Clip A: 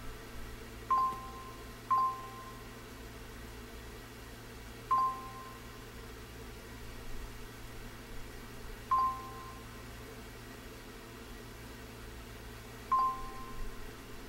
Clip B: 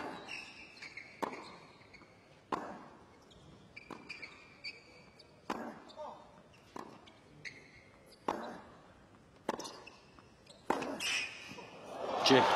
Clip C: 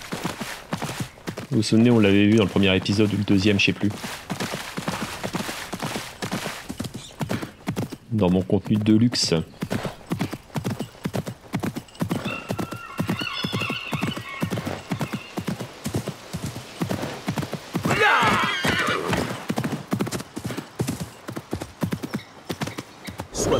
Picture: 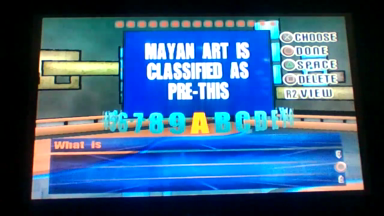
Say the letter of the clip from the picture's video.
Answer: A